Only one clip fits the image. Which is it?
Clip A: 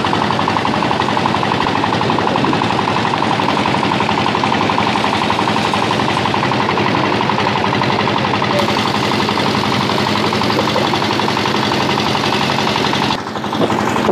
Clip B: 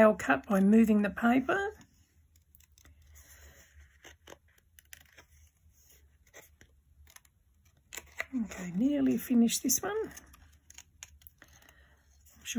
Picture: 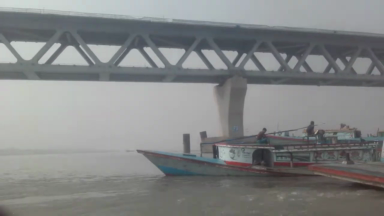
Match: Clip A